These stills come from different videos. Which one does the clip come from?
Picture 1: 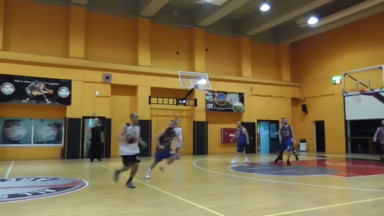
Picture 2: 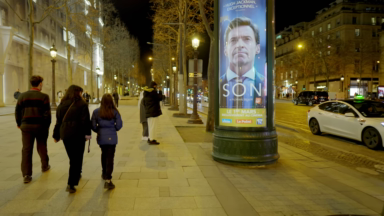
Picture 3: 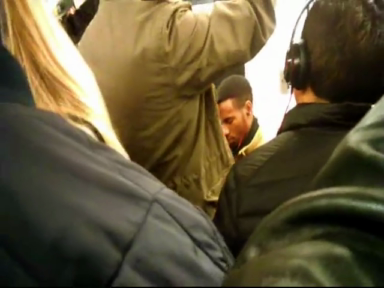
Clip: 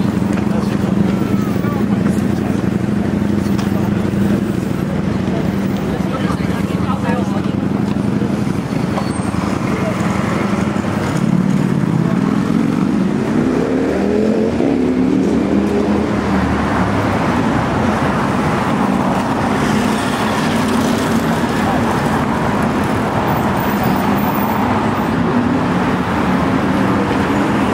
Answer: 2